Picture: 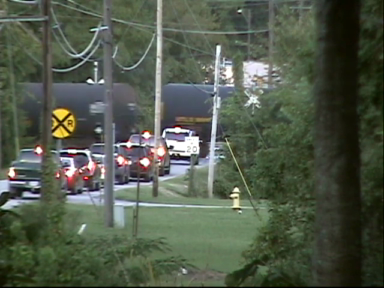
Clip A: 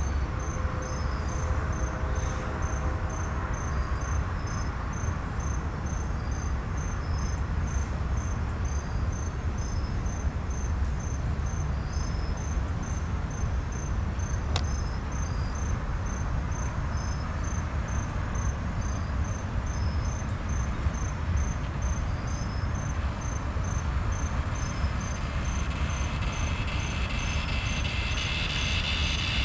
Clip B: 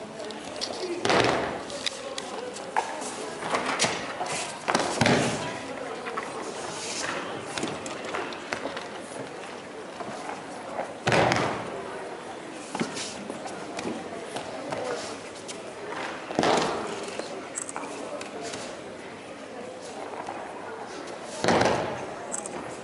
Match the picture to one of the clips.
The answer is A